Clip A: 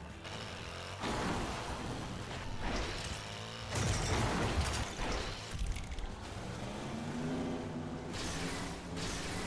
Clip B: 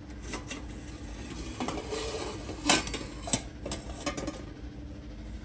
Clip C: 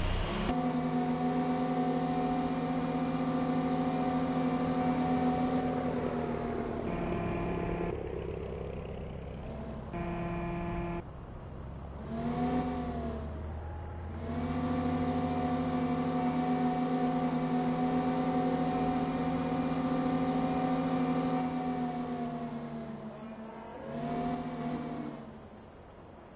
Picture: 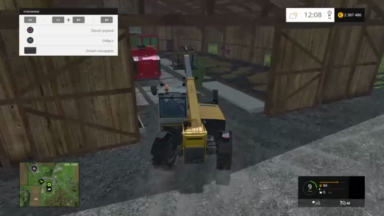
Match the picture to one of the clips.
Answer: C